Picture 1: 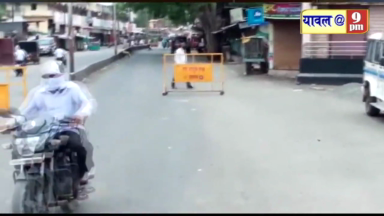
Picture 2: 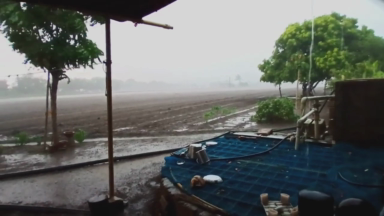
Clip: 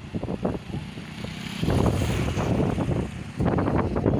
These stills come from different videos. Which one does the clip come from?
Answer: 1